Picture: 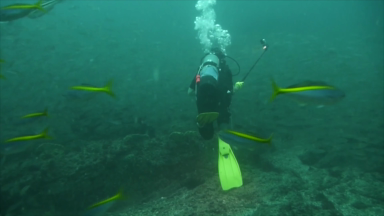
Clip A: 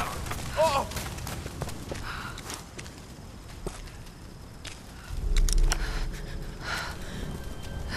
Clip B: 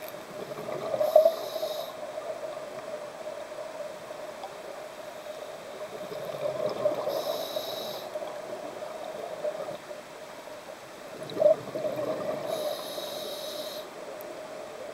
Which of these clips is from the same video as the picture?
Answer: B